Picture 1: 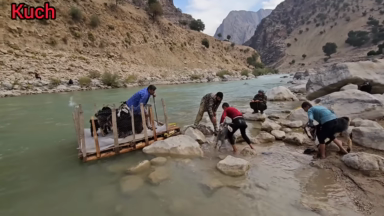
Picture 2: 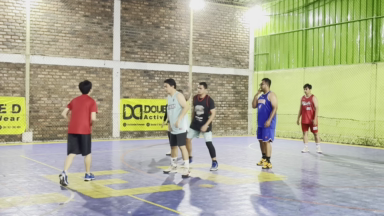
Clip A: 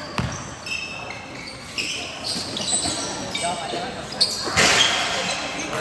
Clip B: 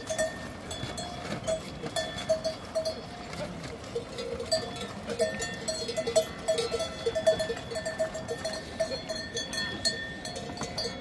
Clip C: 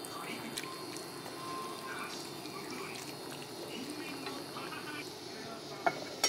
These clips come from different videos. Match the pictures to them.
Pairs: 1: B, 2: A